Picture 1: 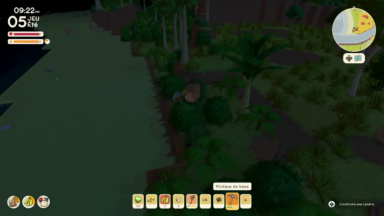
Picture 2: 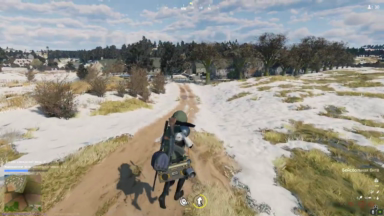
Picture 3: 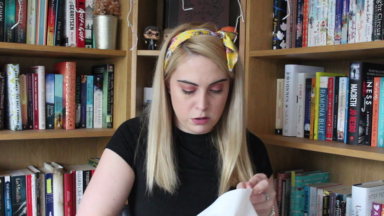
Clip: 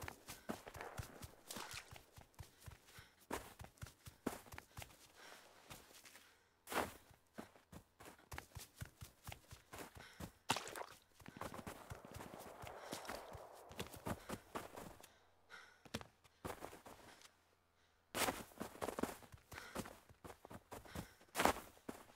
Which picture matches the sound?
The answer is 2